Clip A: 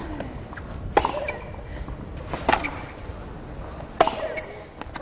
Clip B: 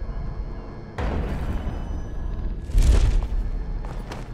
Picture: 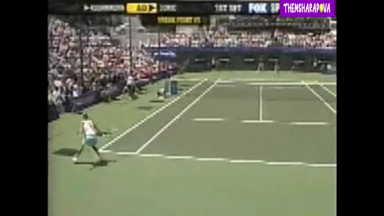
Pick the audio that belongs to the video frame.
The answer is A